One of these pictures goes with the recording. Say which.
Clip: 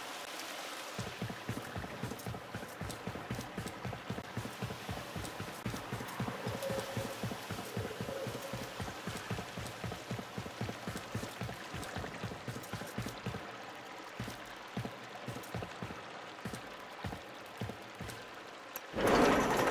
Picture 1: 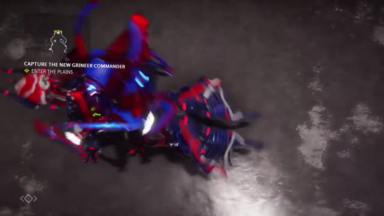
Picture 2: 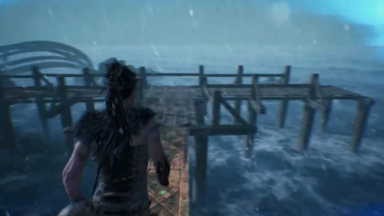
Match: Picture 1